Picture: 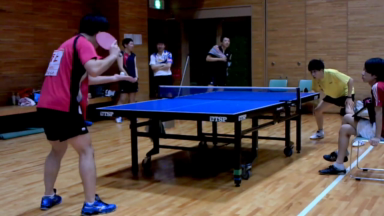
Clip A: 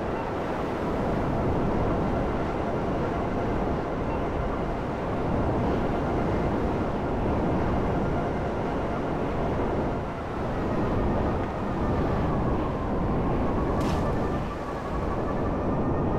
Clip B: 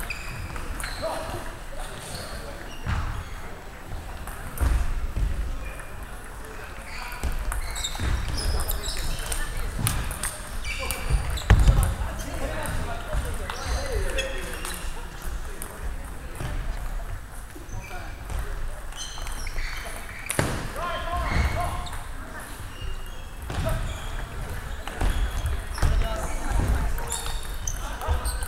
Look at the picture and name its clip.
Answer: B